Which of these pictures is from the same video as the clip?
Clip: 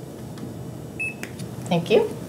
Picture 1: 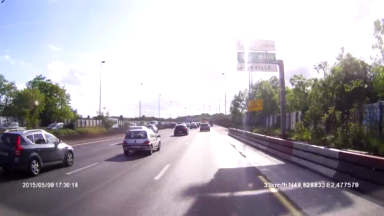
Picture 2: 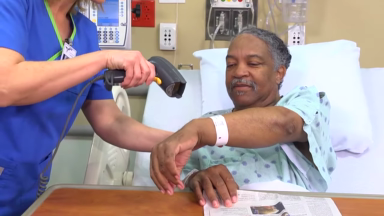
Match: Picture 2